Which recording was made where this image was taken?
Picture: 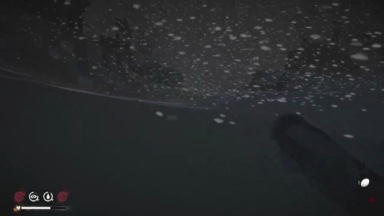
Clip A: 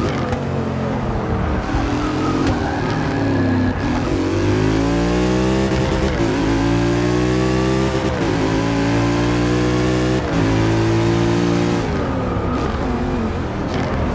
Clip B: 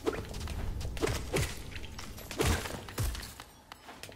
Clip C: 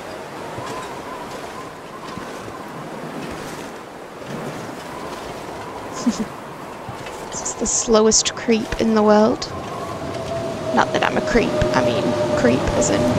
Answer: C